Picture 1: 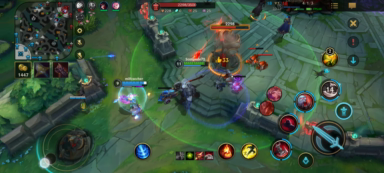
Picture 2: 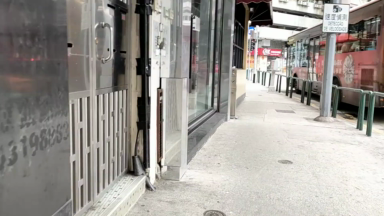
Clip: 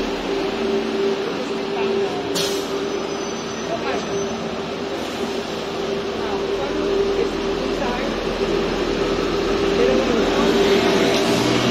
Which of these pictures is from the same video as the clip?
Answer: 2